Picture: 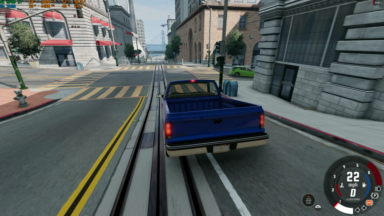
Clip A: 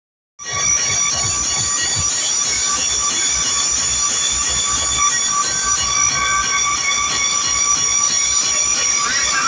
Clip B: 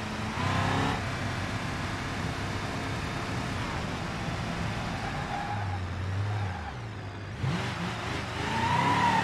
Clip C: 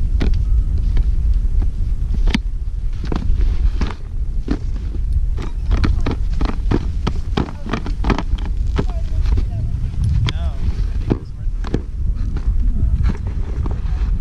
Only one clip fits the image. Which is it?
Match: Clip B